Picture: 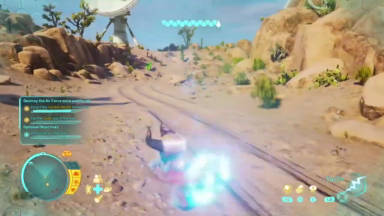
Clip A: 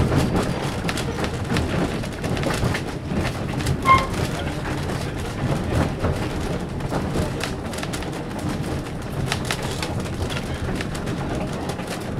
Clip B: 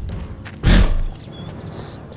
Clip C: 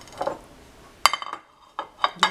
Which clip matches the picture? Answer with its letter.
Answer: B